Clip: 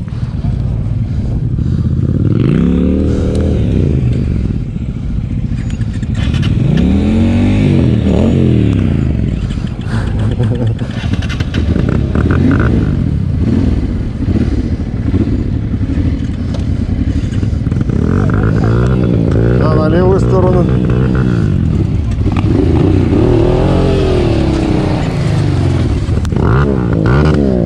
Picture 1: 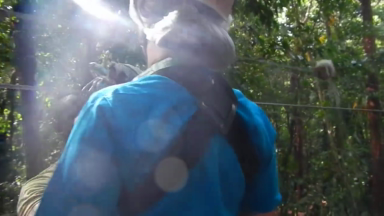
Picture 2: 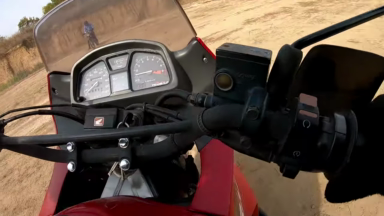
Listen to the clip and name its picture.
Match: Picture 2